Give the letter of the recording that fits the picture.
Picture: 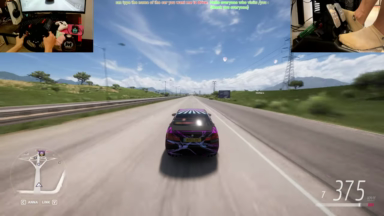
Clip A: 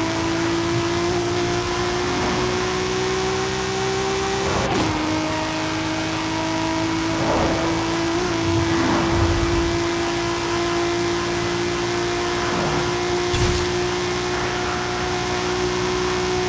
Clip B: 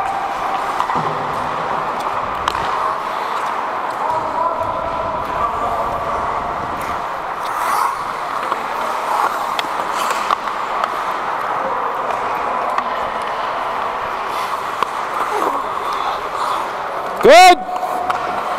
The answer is A